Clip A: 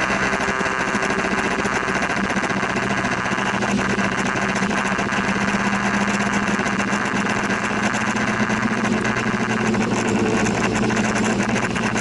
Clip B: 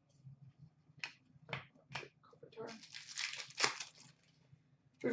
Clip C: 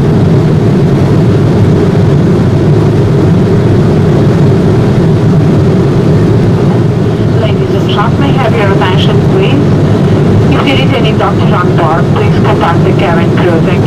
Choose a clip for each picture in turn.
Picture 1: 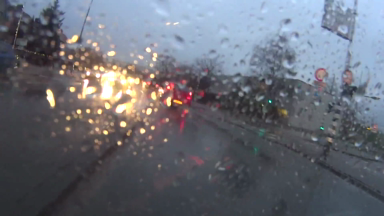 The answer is A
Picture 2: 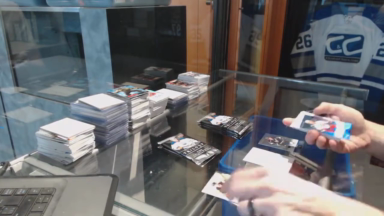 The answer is B